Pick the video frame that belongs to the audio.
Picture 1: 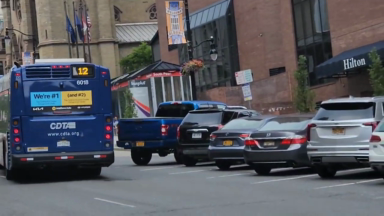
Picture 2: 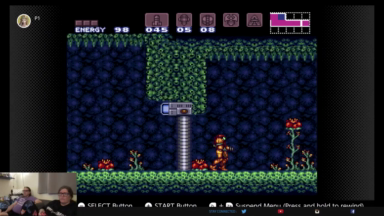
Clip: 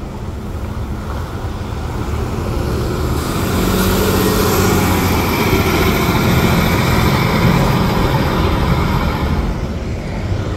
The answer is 1